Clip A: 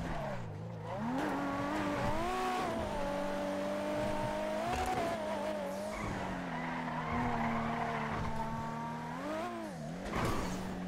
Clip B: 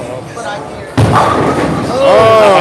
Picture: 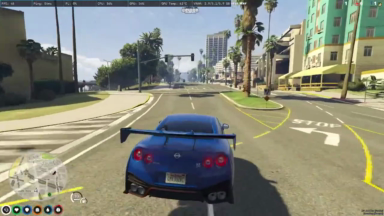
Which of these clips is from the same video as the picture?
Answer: A